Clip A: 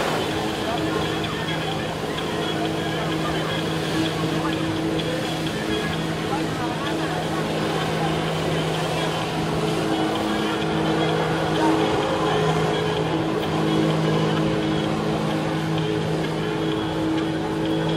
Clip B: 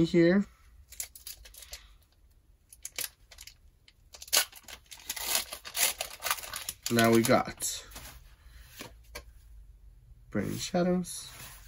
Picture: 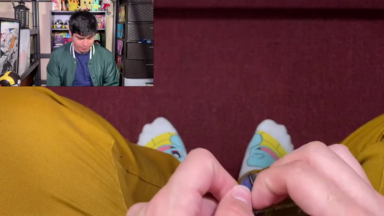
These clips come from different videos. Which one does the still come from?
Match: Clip B